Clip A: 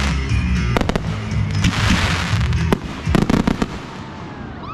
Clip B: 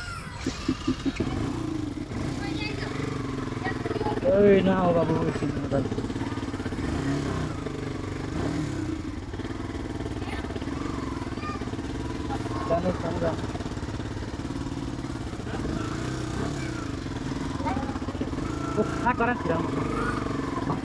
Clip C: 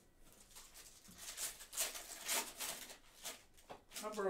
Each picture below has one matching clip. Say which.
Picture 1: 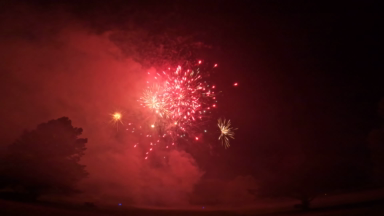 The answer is A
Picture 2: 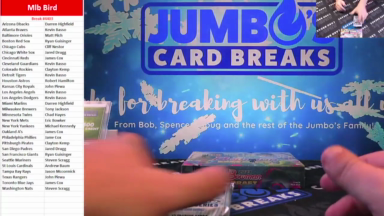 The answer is C